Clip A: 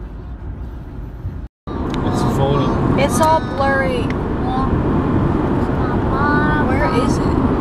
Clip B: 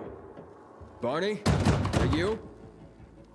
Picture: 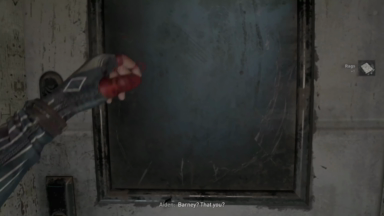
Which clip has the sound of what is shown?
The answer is B